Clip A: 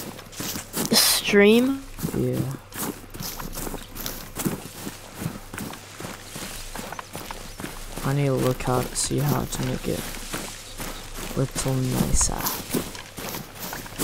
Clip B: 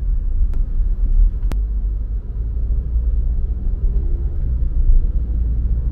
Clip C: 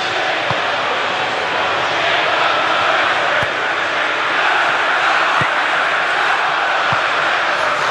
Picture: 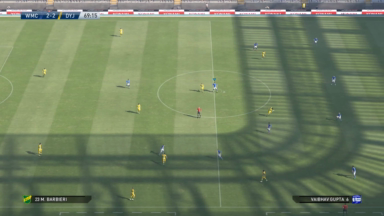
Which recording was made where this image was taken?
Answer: C